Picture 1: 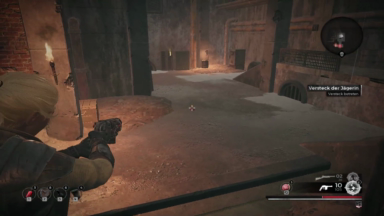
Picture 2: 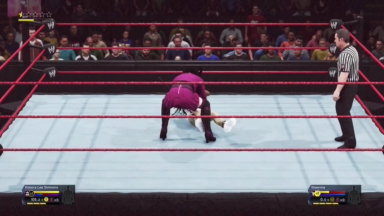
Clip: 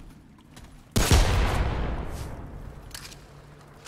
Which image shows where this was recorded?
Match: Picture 1